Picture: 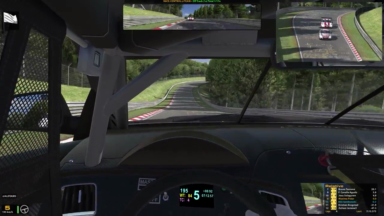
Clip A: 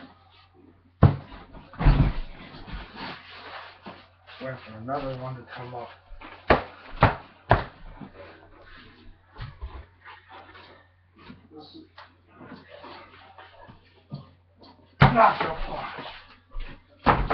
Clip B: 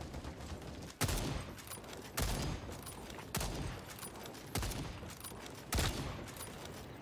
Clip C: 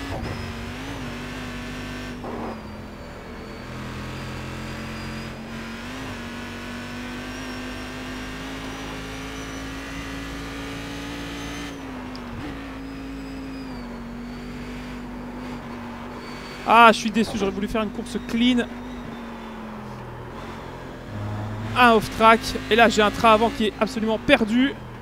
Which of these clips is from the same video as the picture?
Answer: C